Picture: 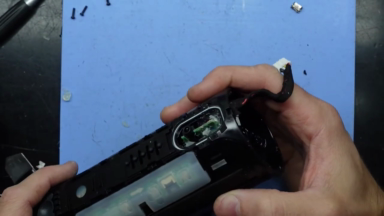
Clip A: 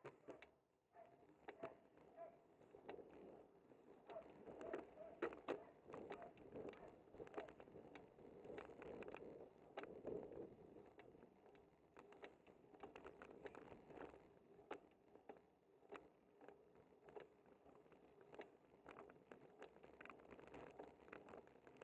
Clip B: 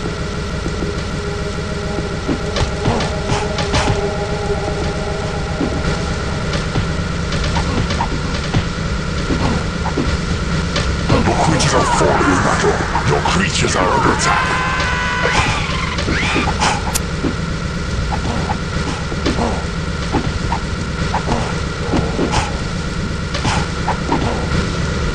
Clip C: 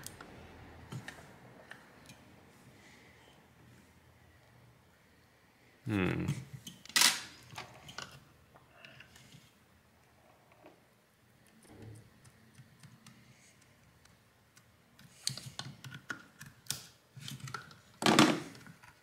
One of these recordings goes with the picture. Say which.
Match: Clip C